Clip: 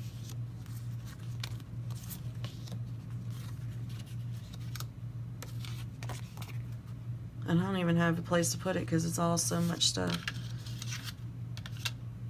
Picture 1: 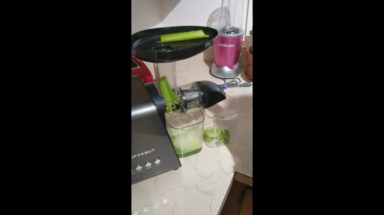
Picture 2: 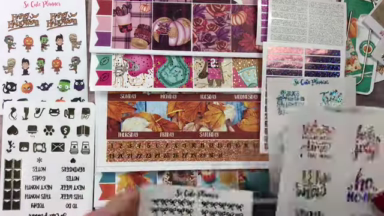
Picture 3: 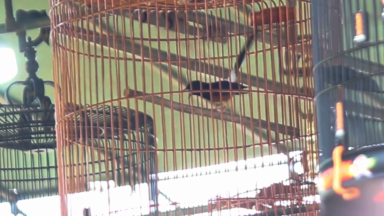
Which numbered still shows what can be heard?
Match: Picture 2